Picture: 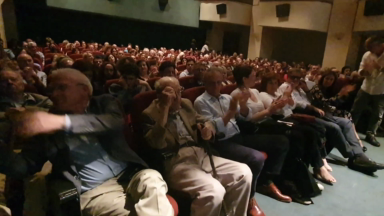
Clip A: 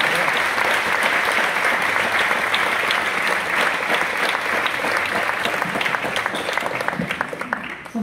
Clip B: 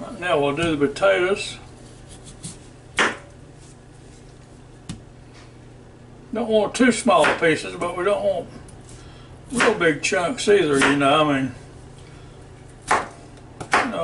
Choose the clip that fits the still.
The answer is A